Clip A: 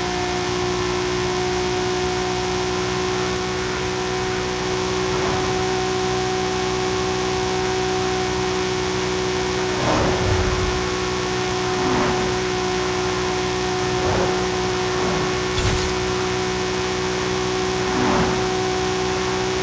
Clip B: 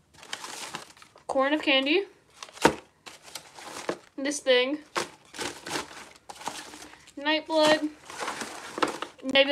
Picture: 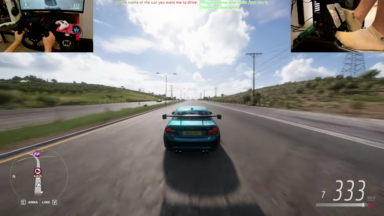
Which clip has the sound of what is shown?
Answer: A